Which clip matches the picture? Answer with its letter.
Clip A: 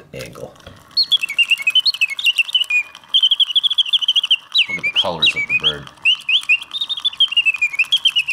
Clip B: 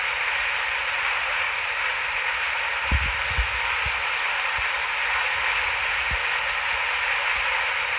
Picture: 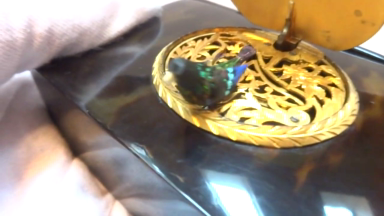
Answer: A